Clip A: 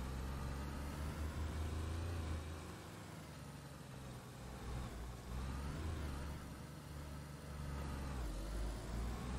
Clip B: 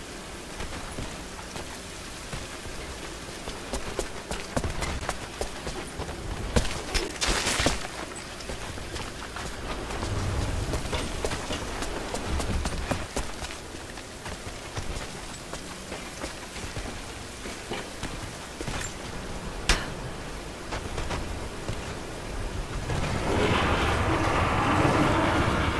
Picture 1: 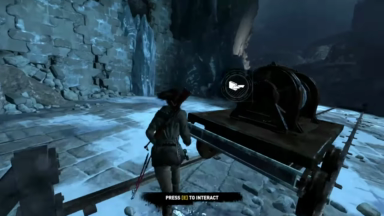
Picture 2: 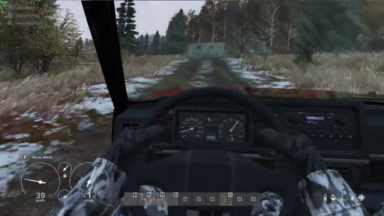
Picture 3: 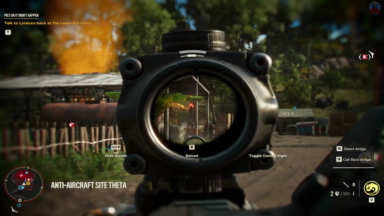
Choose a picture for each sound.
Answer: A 2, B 1